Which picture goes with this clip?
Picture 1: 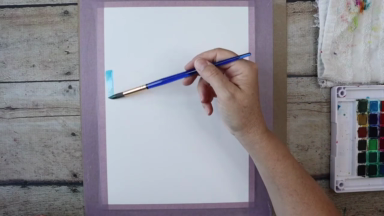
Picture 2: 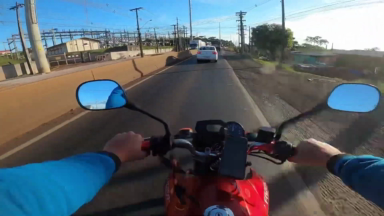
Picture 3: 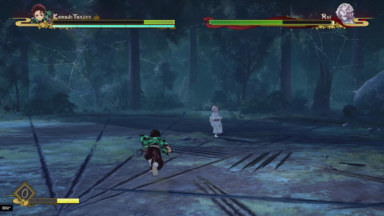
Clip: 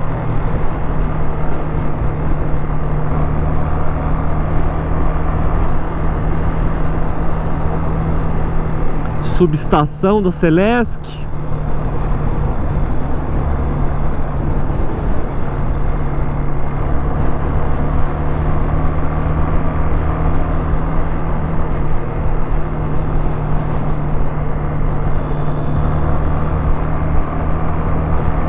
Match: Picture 2